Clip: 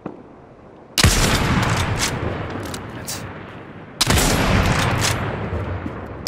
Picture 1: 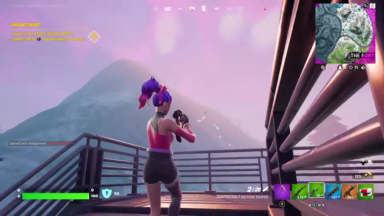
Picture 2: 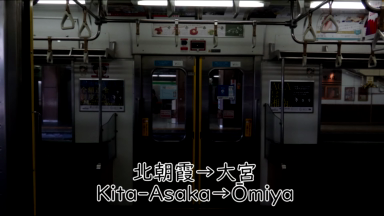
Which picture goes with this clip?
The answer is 1